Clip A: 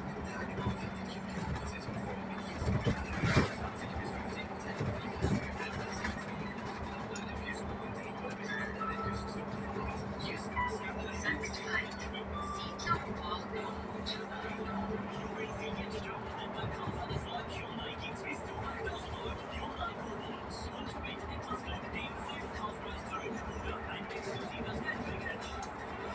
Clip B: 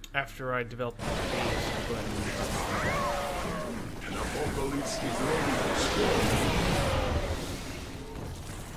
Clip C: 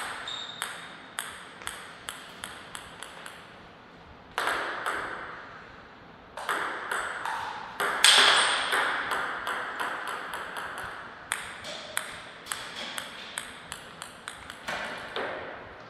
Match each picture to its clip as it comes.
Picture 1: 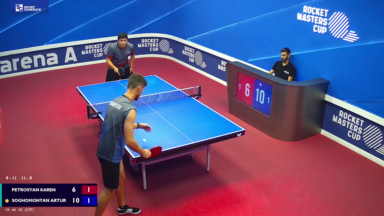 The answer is C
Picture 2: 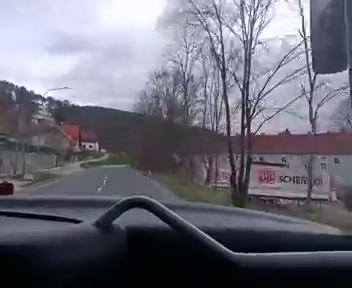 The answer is A